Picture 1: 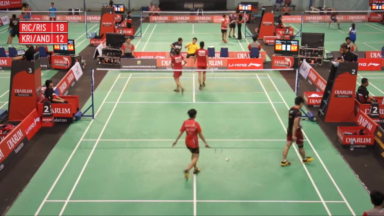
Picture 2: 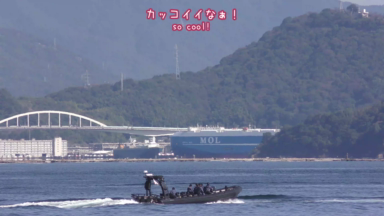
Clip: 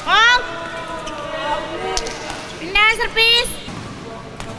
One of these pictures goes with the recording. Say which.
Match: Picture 1